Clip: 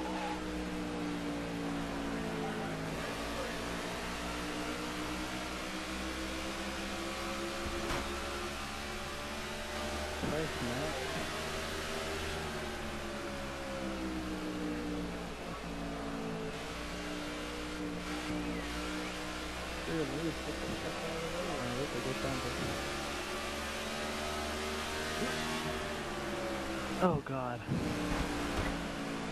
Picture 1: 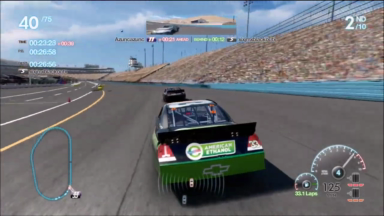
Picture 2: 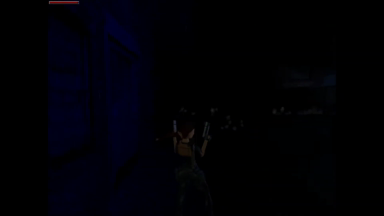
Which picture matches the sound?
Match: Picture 1